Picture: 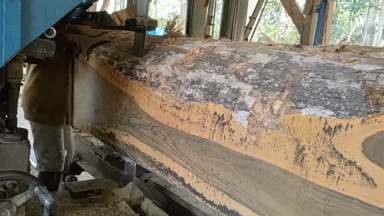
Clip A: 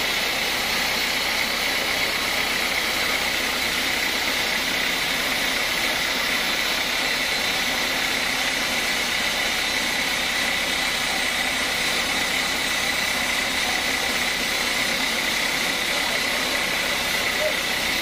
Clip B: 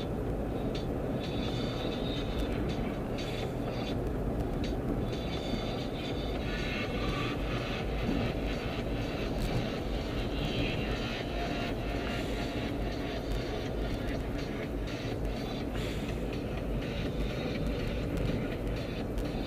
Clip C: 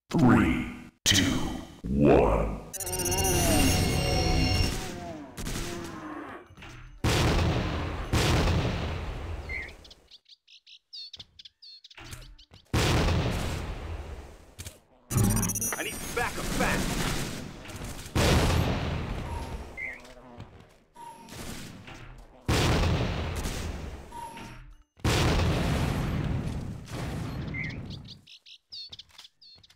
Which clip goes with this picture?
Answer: A